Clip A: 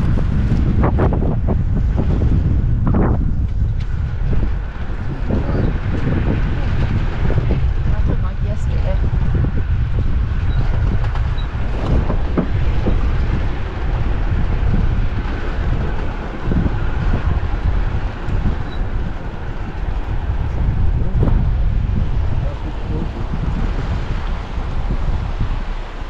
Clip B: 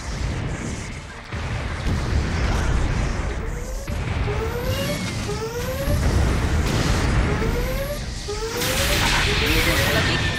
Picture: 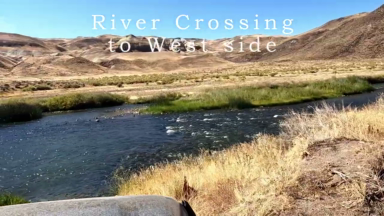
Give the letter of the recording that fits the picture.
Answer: A